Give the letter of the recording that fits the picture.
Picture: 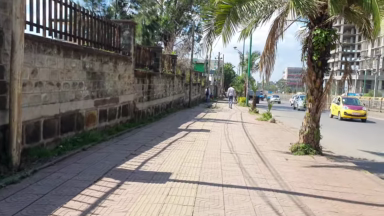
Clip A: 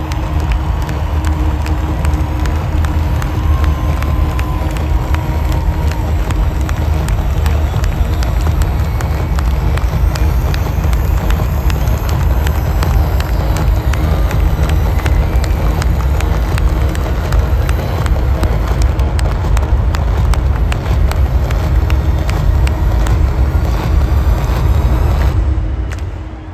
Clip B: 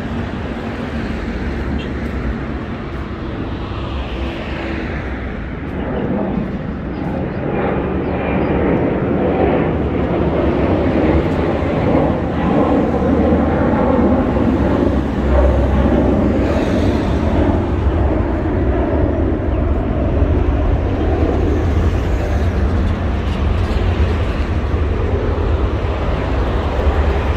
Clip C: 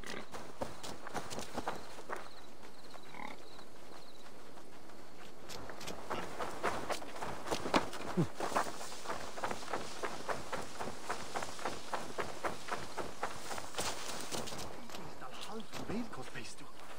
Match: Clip B